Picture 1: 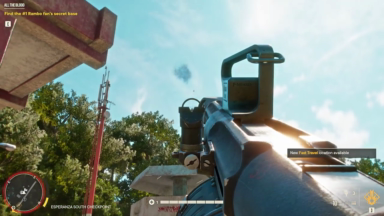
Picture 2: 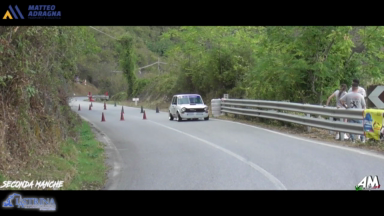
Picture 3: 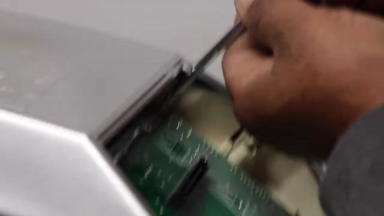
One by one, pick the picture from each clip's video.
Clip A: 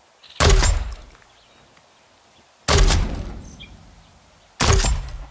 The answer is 1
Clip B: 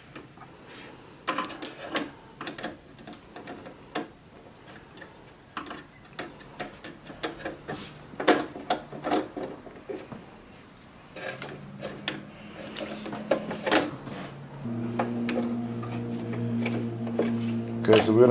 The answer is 3